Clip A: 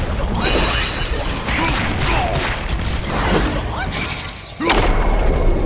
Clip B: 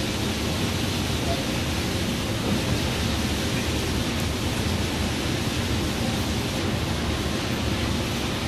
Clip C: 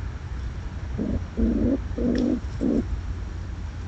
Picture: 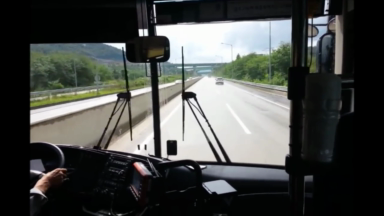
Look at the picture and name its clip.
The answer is B